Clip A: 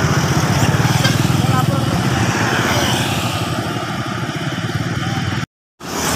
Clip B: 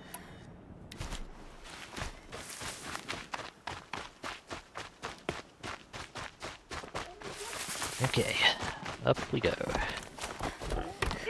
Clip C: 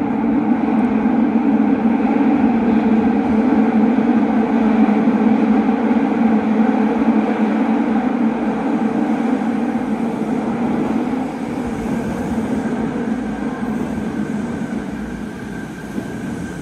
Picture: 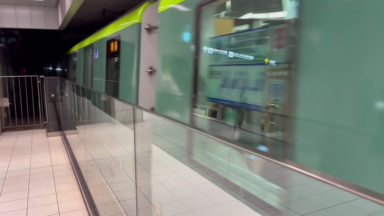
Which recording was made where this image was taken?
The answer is C